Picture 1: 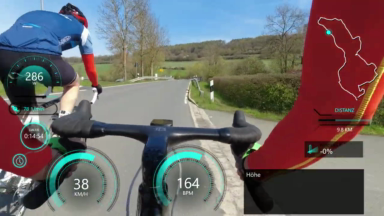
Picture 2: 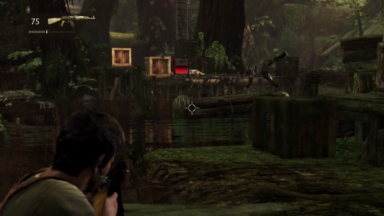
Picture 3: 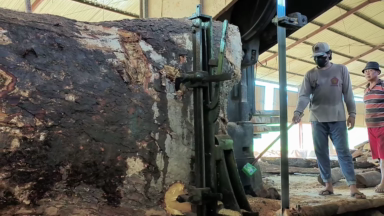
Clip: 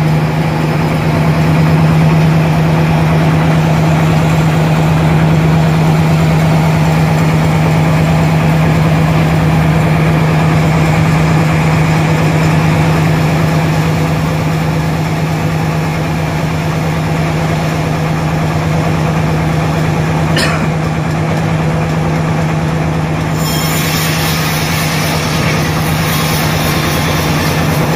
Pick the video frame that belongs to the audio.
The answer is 3